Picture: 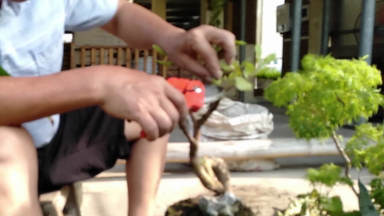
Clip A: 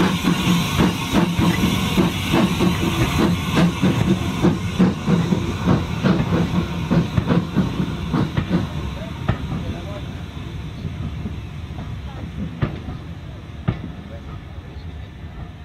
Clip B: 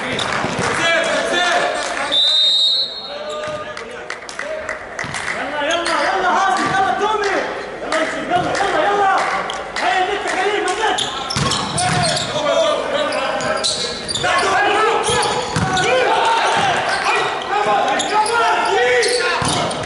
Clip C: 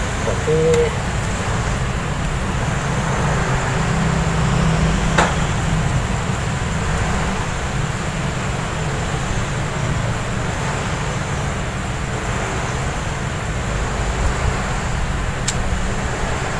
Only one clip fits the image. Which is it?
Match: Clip C